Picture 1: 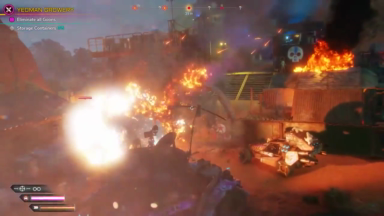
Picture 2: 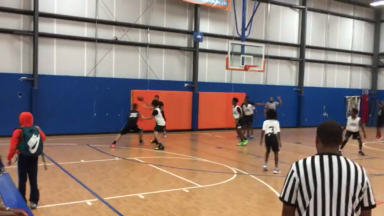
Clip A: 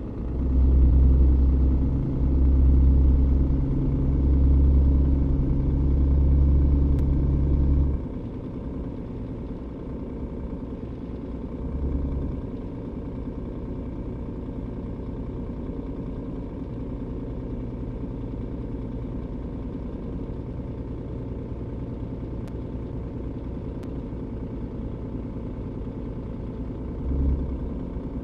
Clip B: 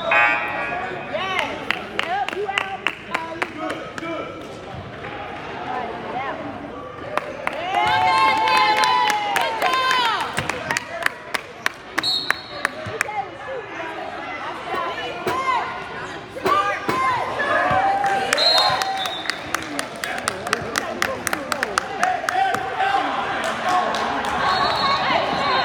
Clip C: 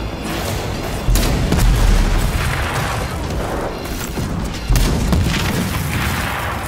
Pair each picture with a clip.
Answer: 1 C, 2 B